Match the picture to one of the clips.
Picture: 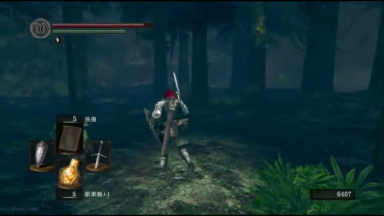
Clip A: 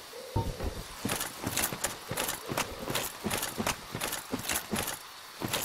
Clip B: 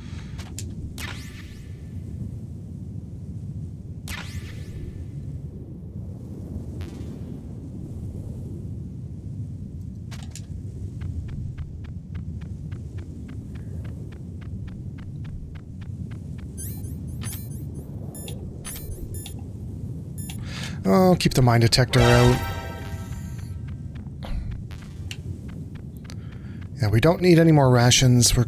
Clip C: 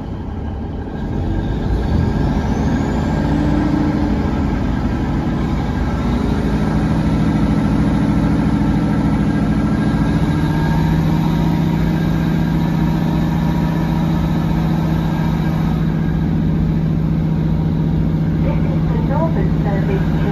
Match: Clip A